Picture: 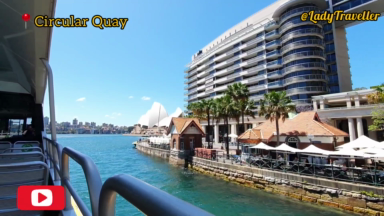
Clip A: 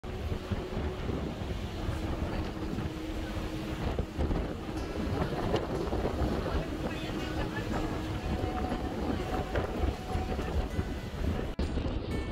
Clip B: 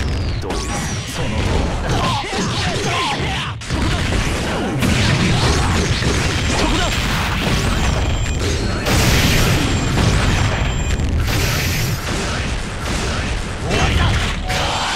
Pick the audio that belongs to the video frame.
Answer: A